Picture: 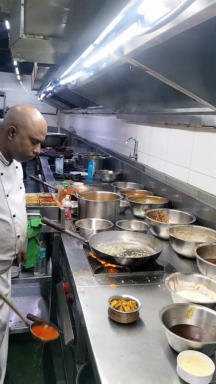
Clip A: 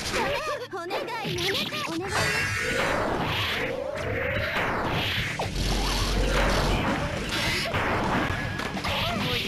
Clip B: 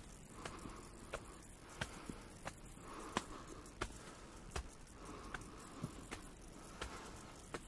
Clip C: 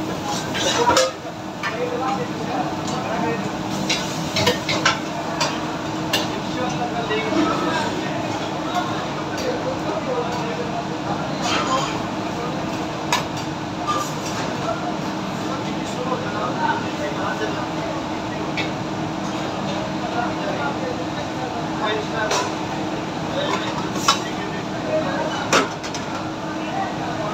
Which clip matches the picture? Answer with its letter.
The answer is C